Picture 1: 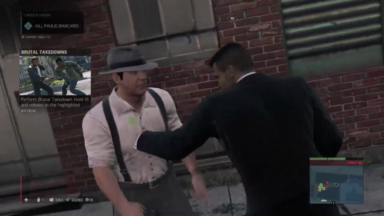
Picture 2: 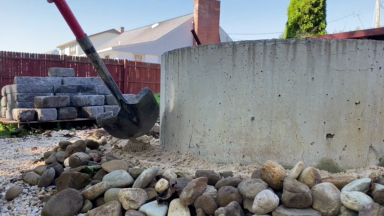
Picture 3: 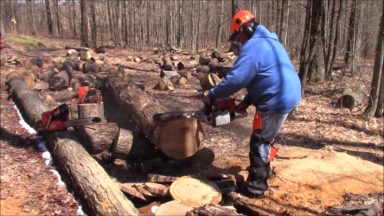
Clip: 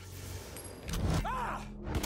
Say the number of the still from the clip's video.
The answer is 1